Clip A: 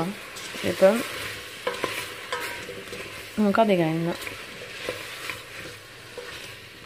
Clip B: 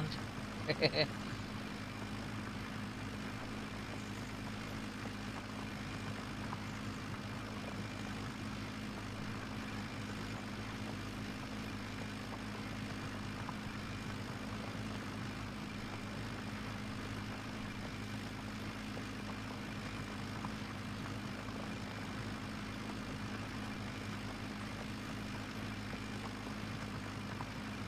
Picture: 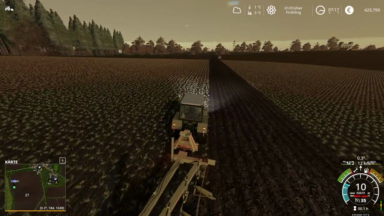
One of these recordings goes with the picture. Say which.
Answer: B